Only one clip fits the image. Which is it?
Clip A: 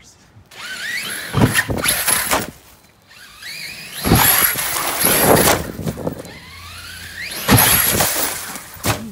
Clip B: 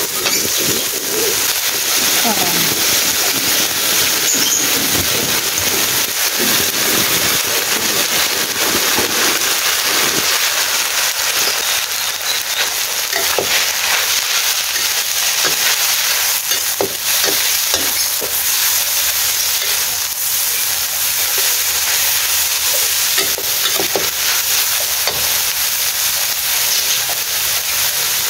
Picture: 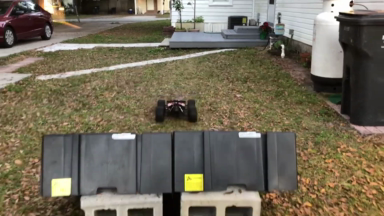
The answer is A